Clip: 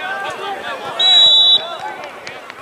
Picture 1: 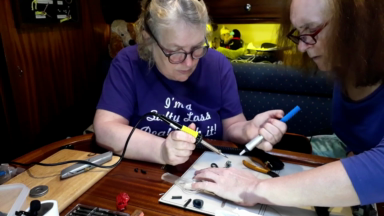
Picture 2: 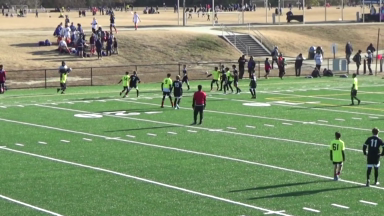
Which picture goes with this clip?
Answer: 2